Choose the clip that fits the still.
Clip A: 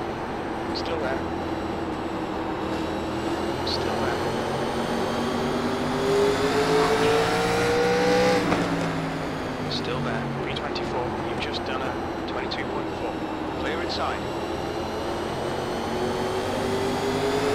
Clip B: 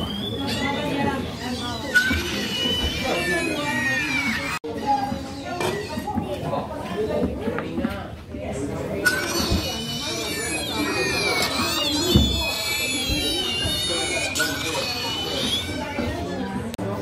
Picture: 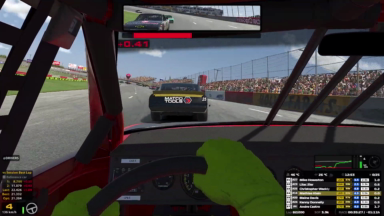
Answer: A